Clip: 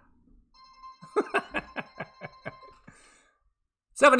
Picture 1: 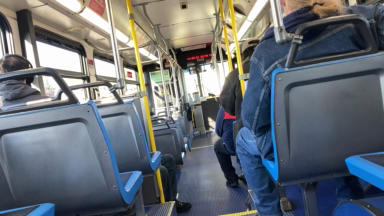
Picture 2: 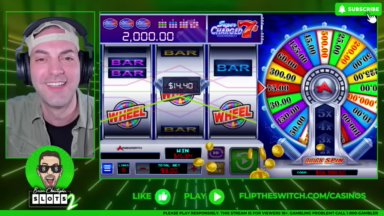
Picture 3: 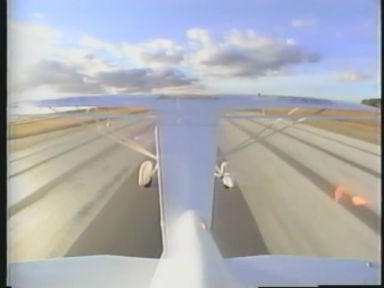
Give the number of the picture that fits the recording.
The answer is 2